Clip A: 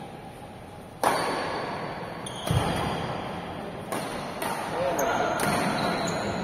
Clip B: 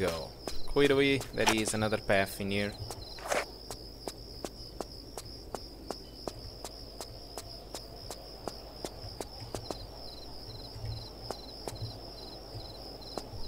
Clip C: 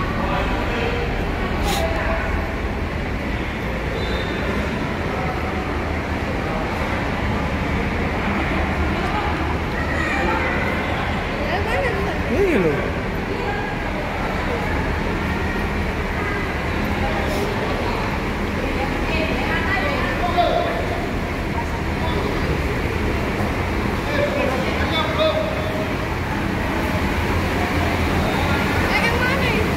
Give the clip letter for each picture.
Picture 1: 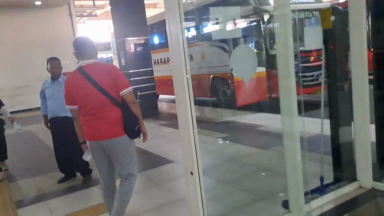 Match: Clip C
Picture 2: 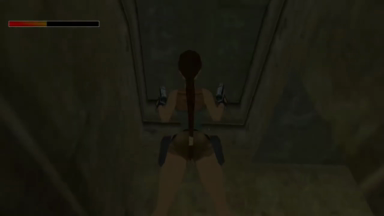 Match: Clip B